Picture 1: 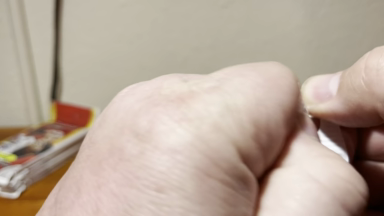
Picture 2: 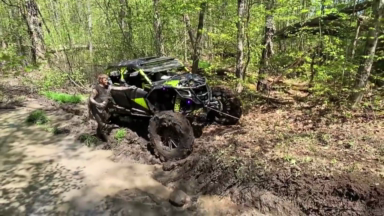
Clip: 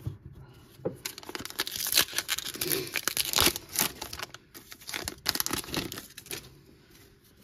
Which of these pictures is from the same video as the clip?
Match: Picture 1